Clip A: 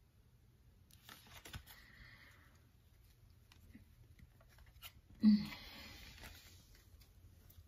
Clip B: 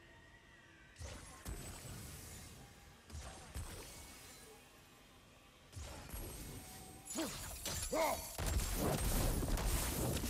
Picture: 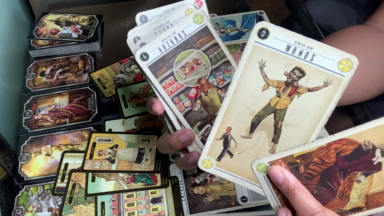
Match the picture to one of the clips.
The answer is A